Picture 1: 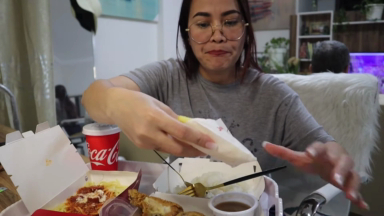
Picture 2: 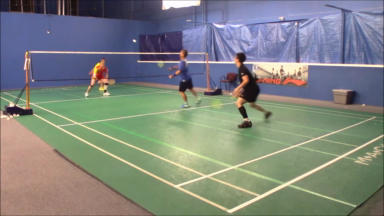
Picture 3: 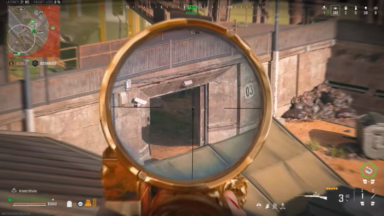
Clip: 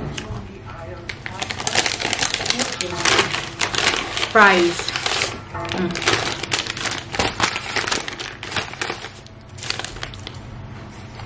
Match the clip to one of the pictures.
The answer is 1